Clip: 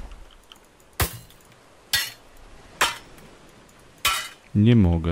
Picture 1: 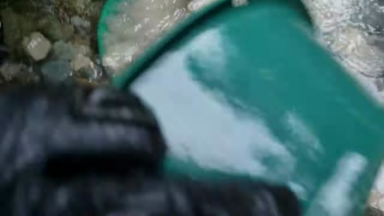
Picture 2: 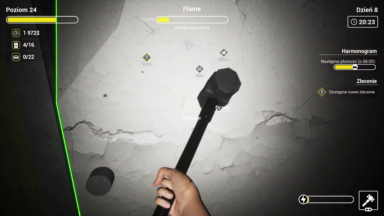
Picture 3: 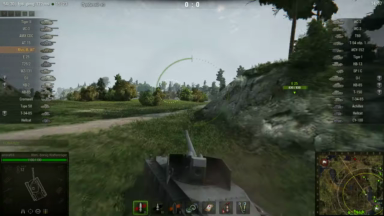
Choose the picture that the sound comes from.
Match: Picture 2